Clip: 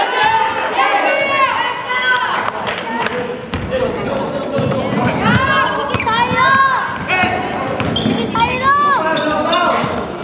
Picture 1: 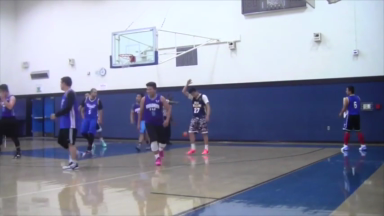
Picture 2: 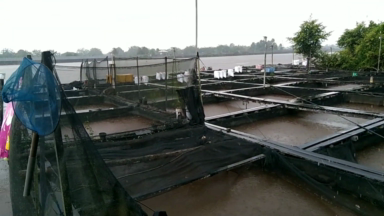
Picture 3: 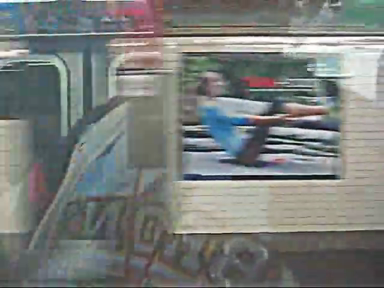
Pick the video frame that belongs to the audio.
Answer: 1